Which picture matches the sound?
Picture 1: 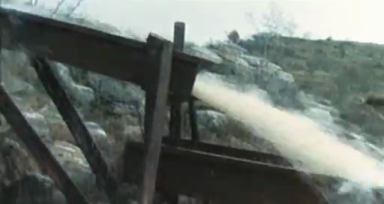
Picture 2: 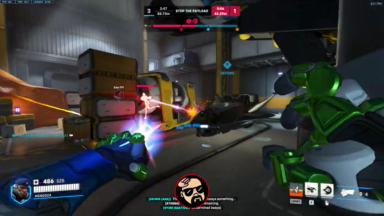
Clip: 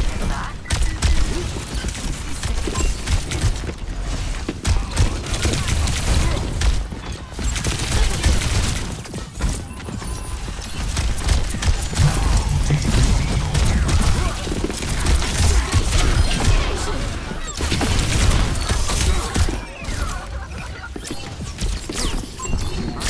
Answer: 2